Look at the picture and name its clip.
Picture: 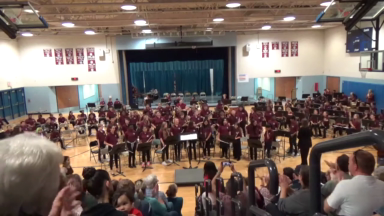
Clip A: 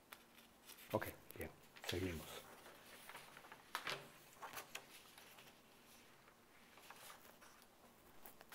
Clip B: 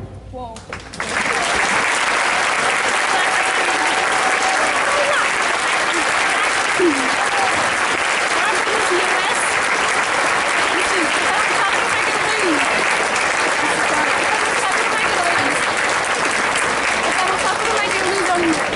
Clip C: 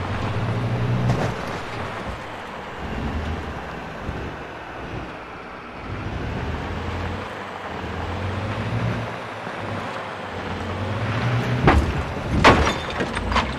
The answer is B